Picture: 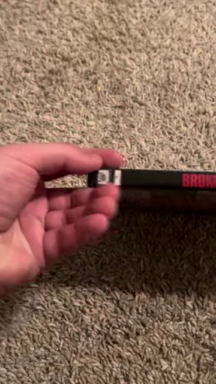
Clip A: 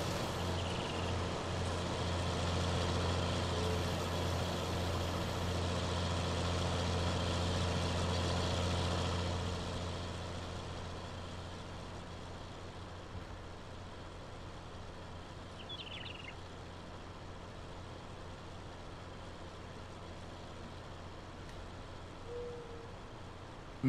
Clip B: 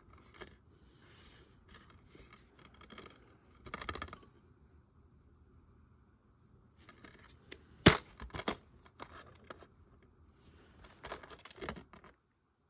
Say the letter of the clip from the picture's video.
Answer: B